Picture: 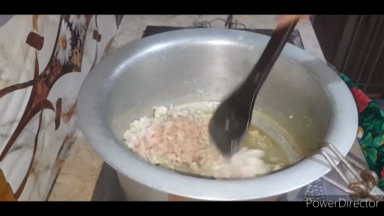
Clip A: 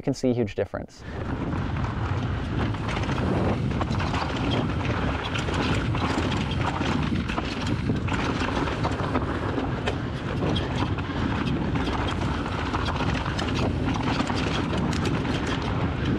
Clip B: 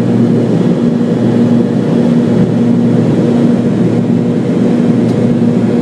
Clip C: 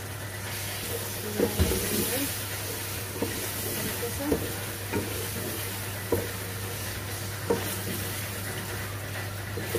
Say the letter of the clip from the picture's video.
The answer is C